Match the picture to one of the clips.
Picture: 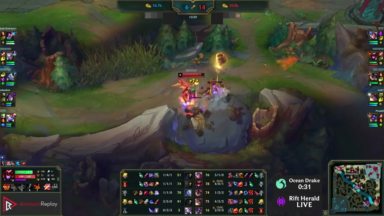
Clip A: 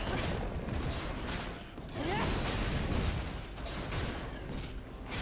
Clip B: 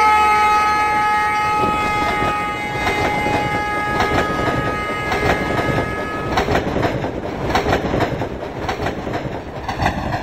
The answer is A